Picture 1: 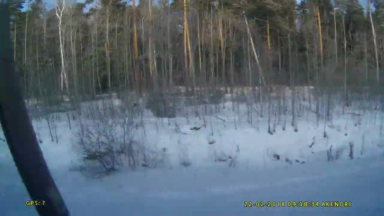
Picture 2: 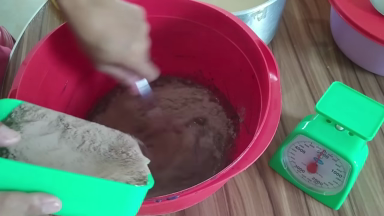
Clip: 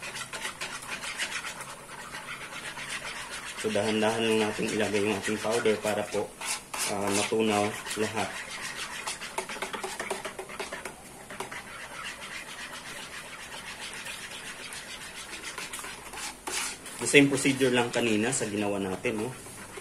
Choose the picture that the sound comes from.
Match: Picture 2